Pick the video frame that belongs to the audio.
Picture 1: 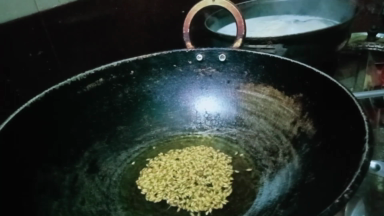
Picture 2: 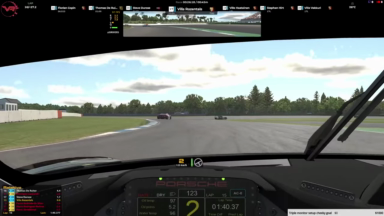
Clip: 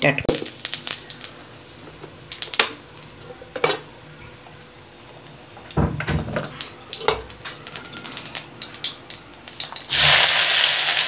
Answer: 1